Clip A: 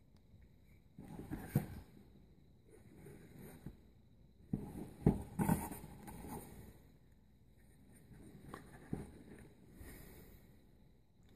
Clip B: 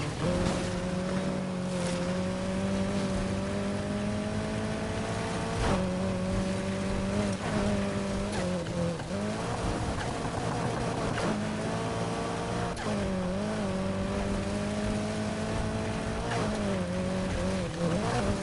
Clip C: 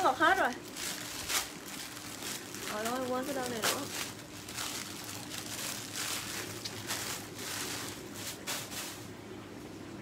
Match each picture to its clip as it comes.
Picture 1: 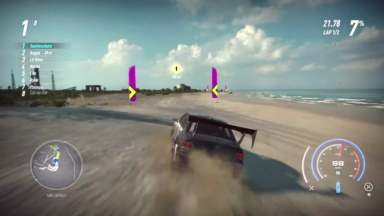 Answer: B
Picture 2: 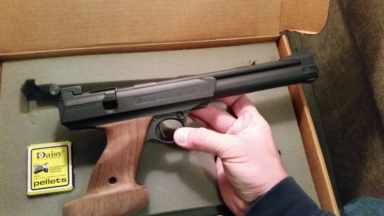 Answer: A